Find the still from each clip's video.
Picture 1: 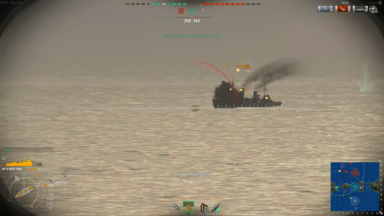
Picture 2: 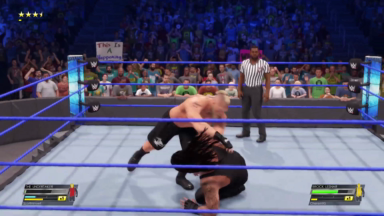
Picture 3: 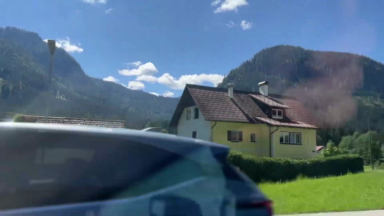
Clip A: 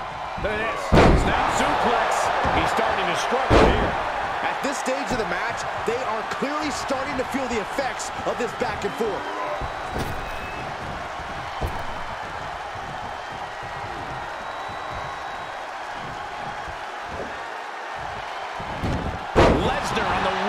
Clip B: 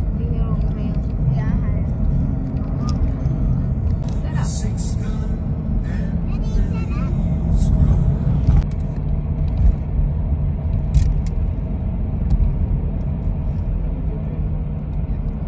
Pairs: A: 2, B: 3